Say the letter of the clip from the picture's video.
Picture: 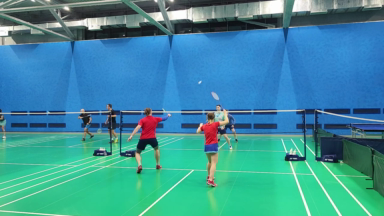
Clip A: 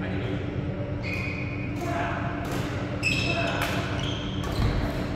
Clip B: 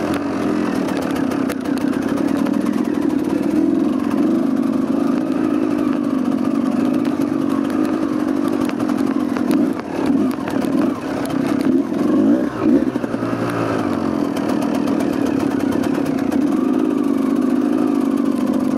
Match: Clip A